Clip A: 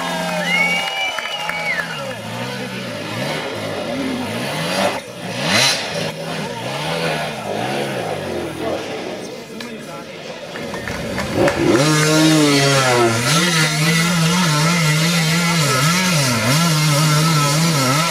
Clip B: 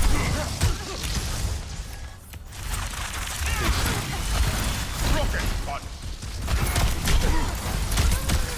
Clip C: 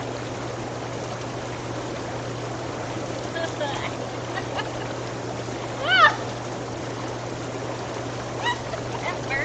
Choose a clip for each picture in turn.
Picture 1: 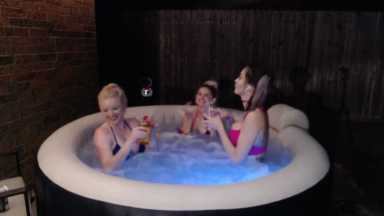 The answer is C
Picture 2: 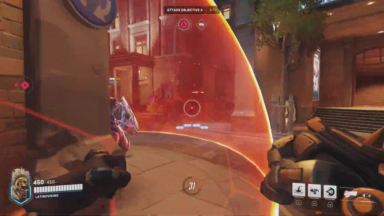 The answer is B